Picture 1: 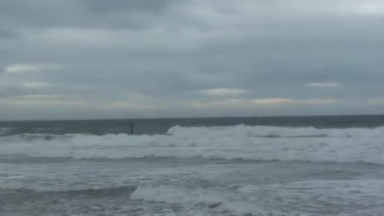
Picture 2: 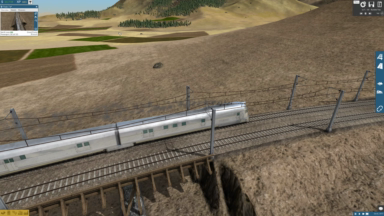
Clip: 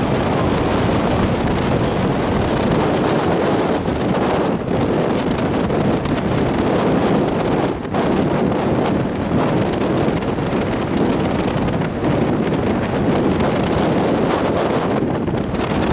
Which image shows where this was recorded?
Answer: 1